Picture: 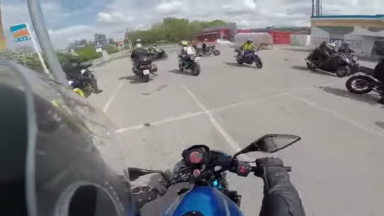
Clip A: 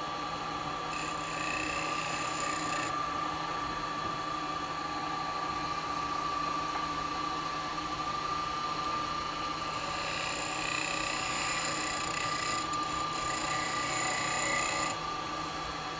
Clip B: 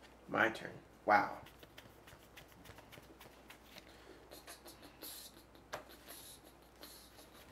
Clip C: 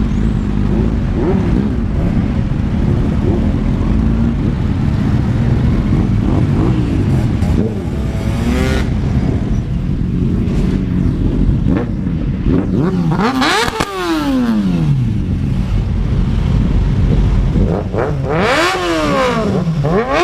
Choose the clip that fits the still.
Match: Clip C